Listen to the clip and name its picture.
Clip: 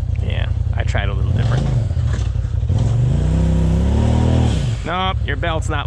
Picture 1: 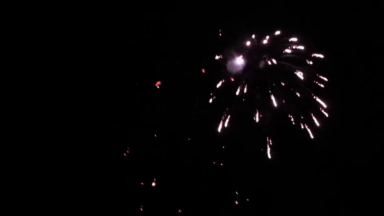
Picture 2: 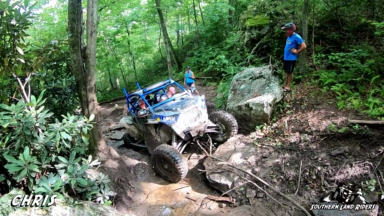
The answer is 2